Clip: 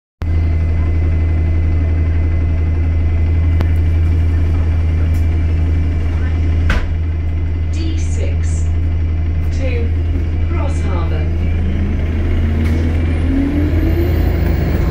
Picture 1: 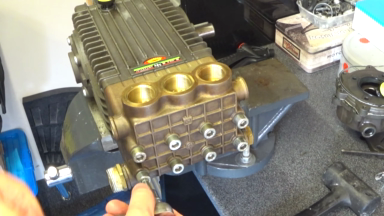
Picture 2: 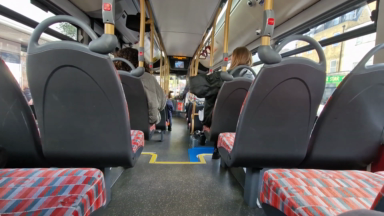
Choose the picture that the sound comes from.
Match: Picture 2